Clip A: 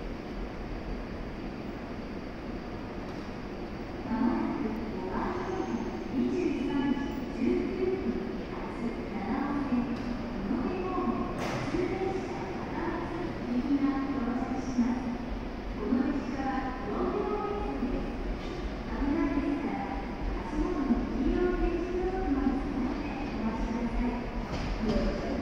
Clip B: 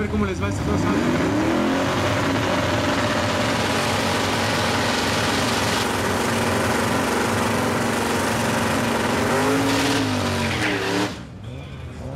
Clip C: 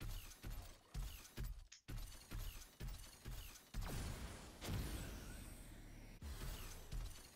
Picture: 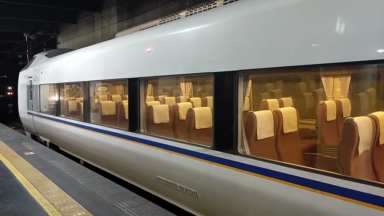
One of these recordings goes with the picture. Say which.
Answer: A